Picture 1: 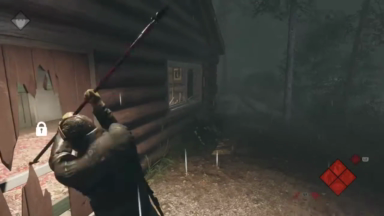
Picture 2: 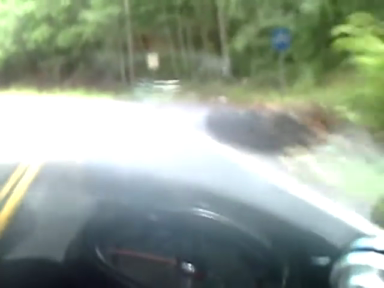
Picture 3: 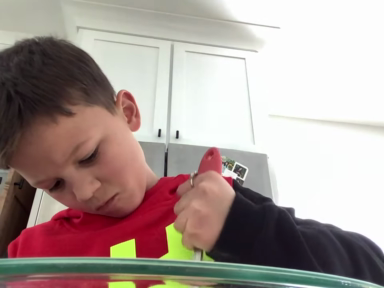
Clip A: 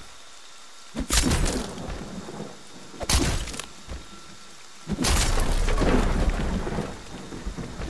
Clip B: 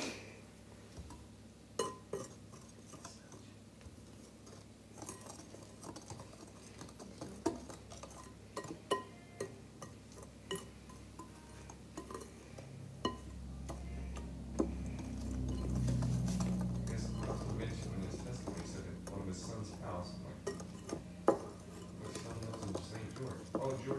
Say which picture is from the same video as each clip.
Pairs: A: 1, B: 3